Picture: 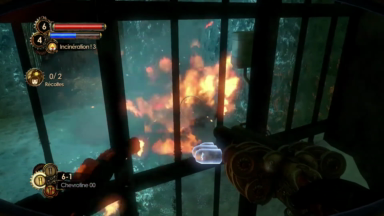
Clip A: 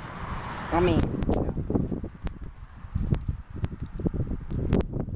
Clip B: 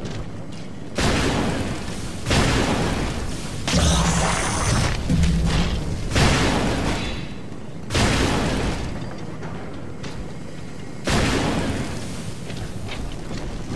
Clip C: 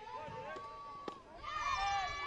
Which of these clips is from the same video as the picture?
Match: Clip B